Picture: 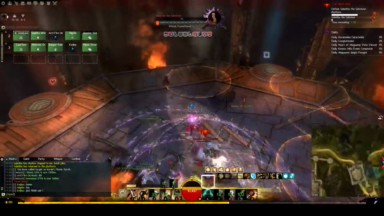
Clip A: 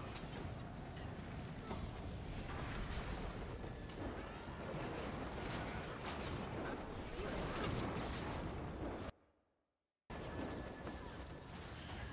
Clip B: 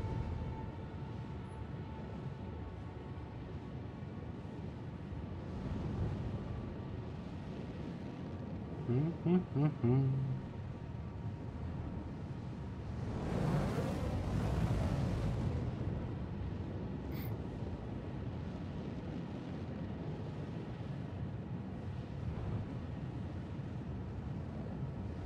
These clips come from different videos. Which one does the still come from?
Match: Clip A